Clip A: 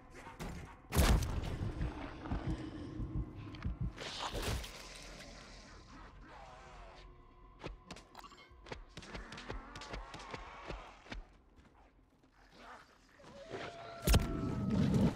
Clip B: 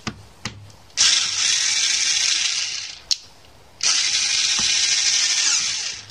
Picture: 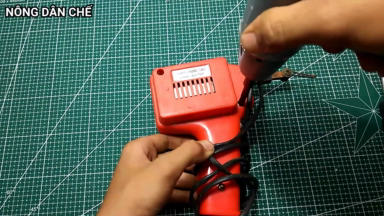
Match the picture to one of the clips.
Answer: B